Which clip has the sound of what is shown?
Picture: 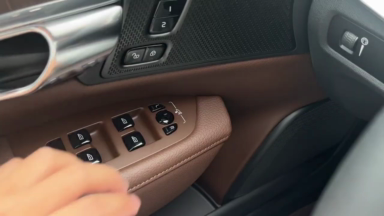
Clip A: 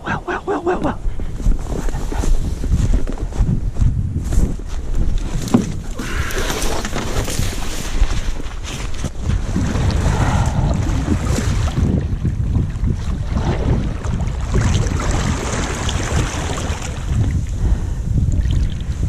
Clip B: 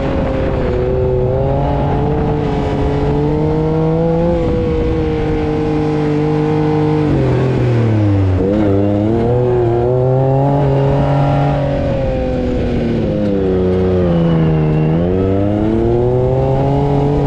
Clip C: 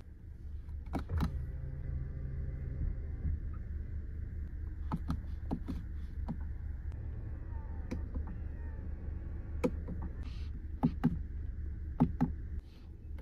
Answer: C